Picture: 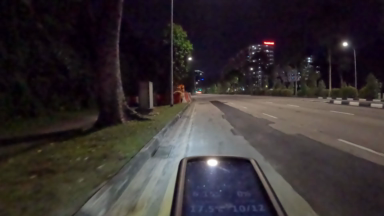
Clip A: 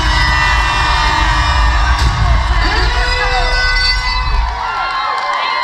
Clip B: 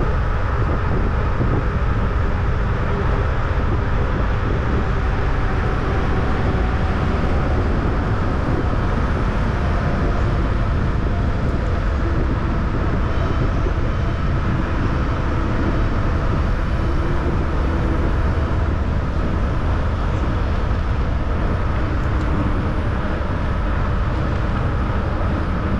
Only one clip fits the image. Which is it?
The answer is B